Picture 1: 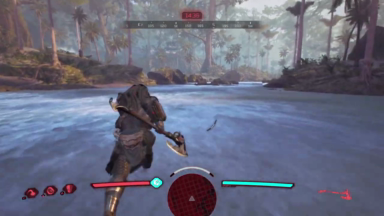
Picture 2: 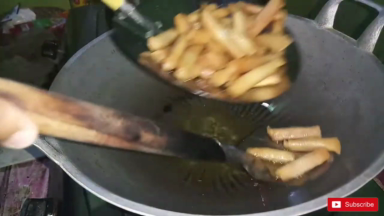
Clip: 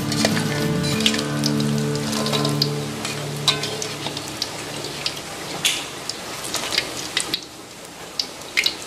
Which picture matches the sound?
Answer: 2